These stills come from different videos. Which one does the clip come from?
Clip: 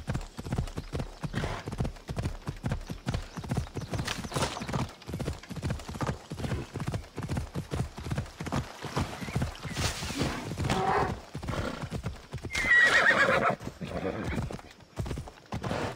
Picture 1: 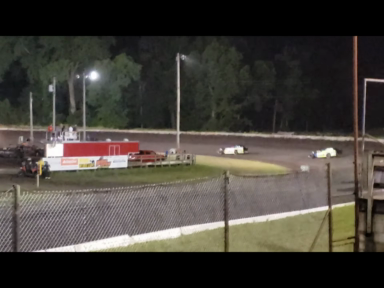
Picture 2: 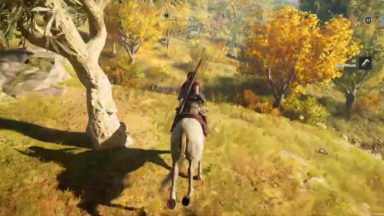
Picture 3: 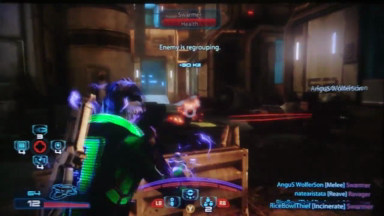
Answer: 2